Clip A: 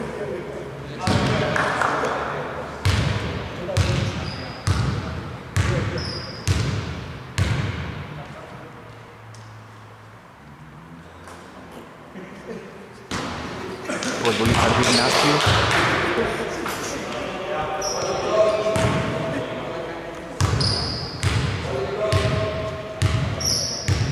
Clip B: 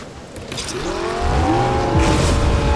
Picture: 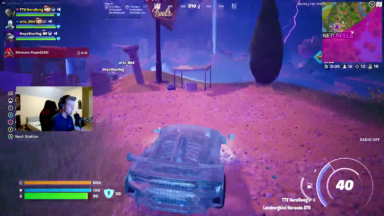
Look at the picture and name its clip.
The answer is B